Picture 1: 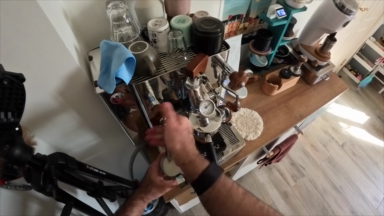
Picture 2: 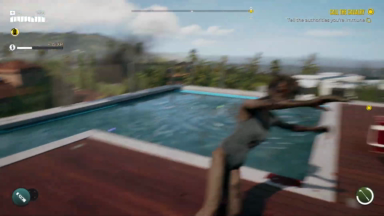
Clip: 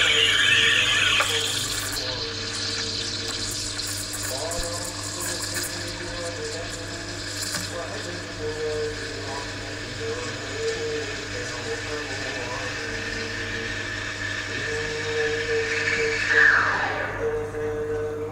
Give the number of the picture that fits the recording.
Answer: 1